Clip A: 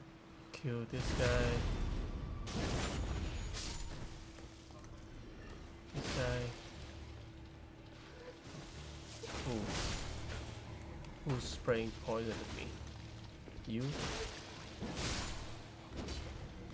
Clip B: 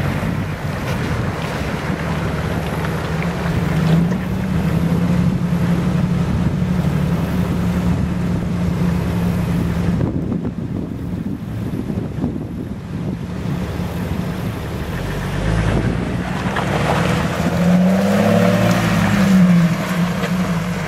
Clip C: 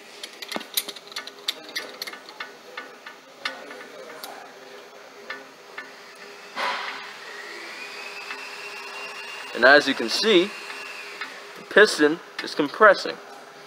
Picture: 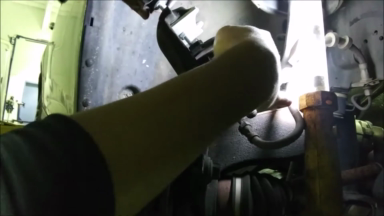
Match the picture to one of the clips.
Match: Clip C